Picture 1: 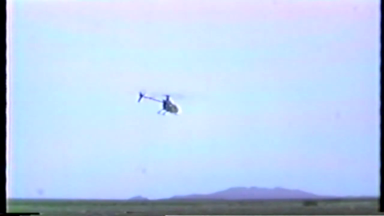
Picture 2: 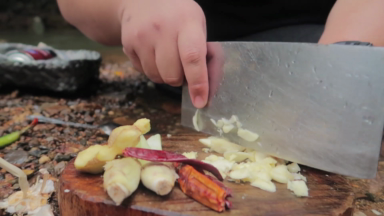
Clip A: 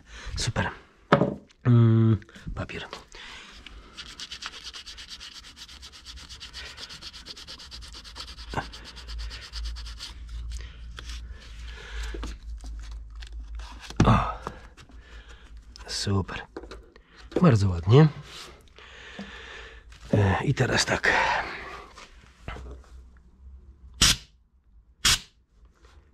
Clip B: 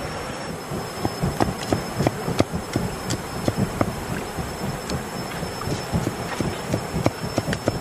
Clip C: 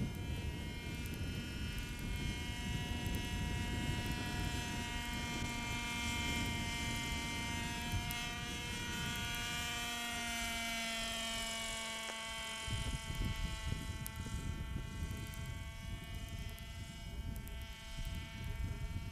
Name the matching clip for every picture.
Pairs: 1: C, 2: B